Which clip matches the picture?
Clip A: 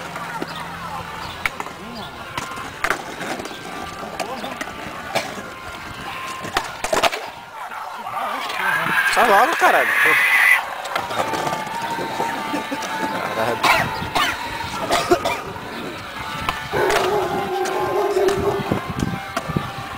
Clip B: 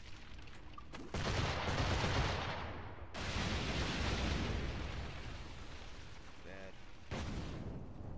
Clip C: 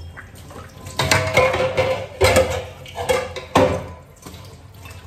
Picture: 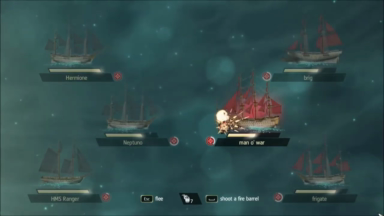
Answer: B